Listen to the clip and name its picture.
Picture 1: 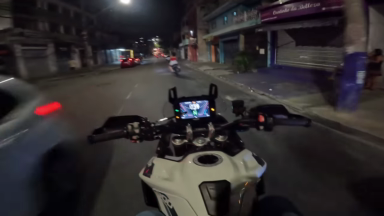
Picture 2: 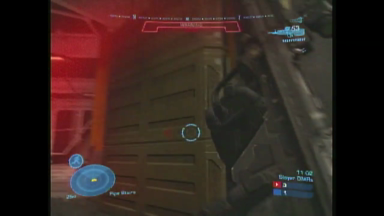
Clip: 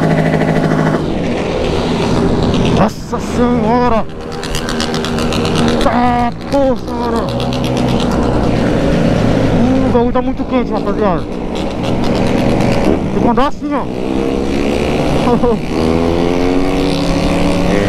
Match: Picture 1